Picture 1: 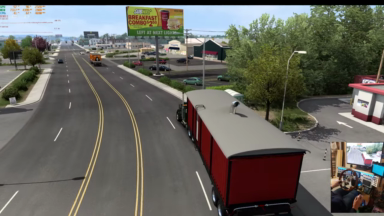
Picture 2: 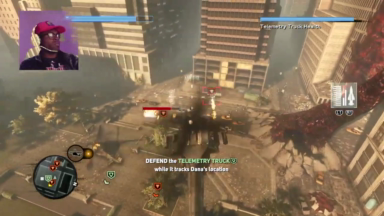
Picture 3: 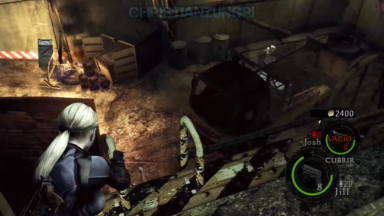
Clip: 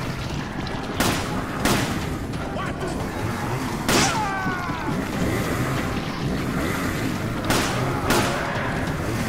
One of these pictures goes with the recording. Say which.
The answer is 3